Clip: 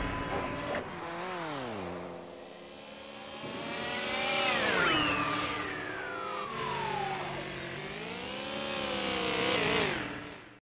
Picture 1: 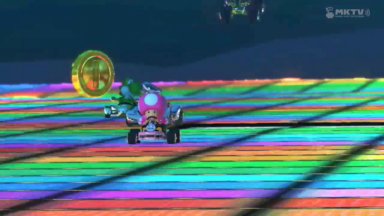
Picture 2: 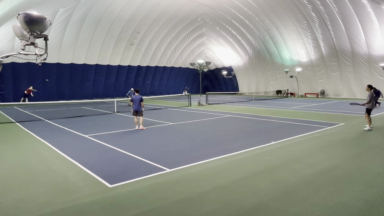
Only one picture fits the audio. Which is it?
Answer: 1